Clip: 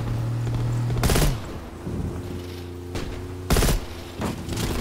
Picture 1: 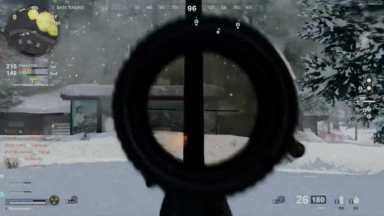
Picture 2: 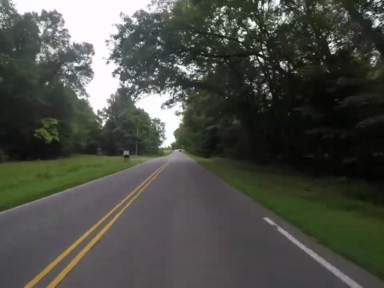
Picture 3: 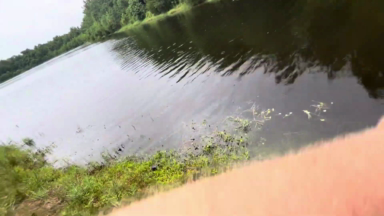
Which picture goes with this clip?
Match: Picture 1